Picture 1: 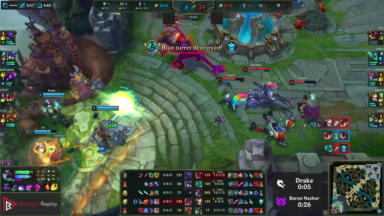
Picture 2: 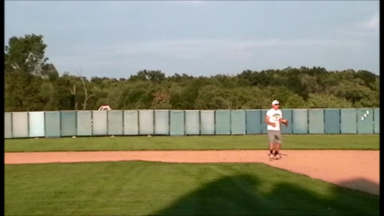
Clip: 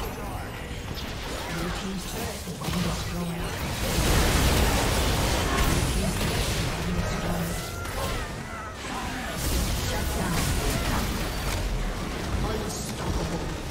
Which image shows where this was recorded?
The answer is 1